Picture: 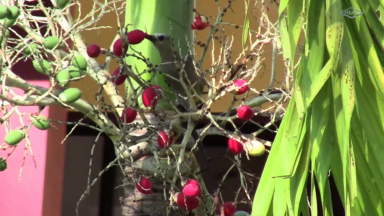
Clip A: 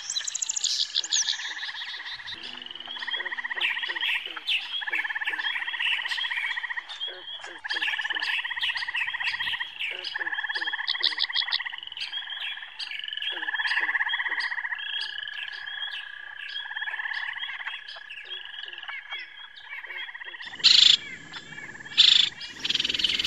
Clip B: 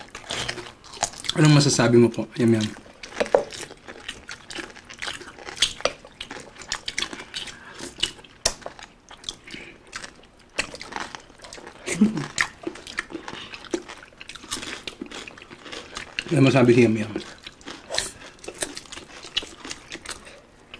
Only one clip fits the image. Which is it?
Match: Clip A